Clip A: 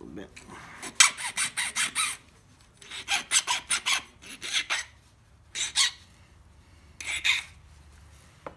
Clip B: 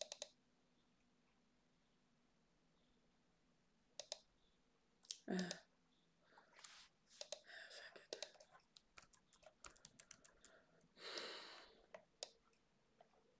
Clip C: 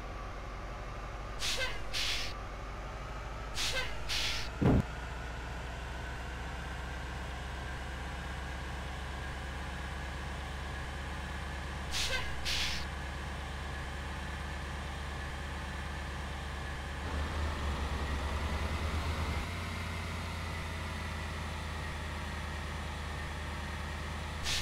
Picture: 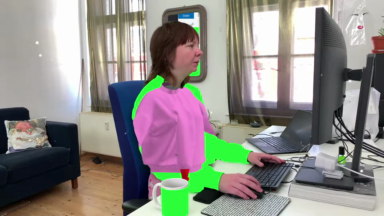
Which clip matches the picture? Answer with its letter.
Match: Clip B